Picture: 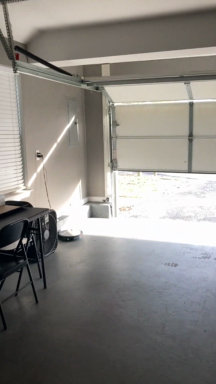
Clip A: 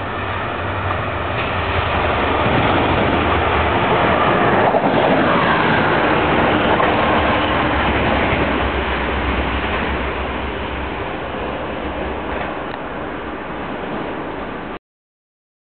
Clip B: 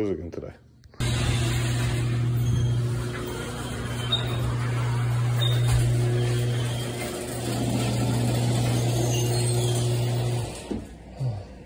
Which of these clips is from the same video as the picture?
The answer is B